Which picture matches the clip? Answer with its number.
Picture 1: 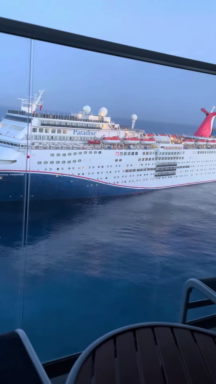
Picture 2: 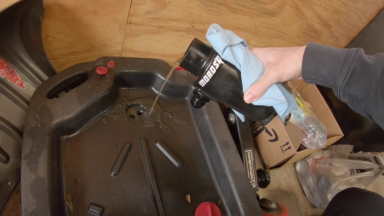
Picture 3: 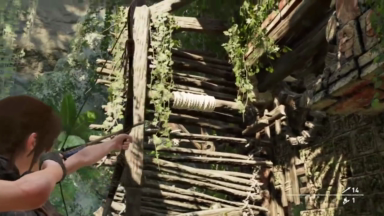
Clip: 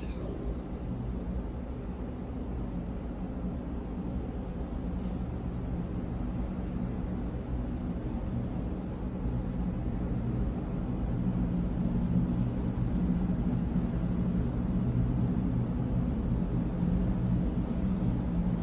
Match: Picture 1